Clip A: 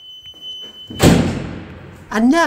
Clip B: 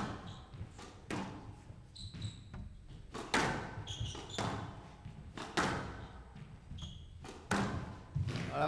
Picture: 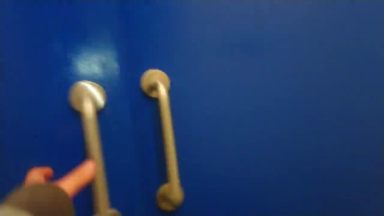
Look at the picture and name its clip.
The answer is A